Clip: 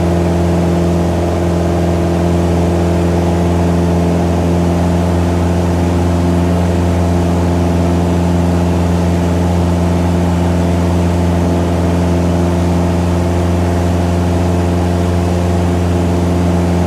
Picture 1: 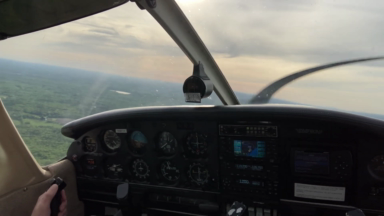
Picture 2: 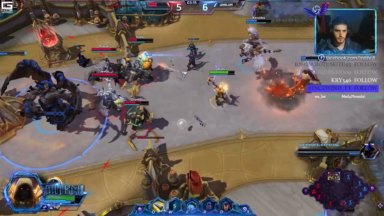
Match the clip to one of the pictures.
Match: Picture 1